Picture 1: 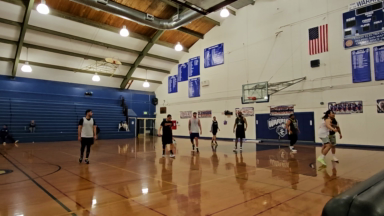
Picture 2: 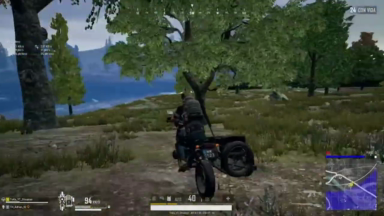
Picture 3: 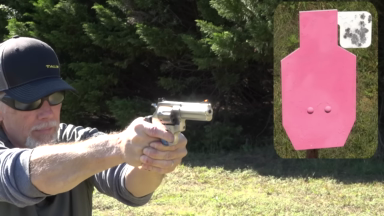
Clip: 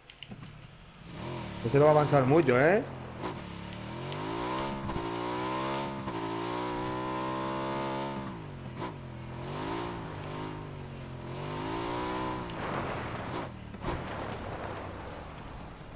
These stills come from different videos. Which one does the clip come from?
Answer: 2